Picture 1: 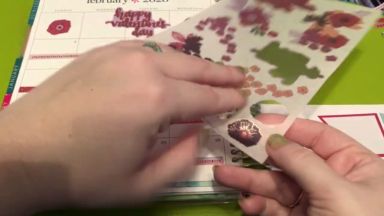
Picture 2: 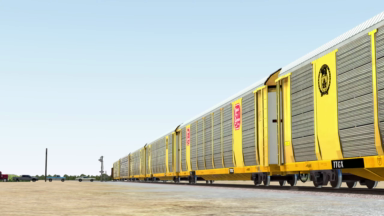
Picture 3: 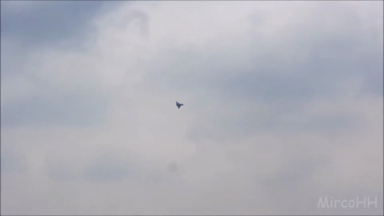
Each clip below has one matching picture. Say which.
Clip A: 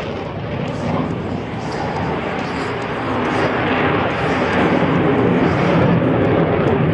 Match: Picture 3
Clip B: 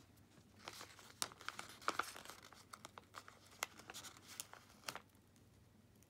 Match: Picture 1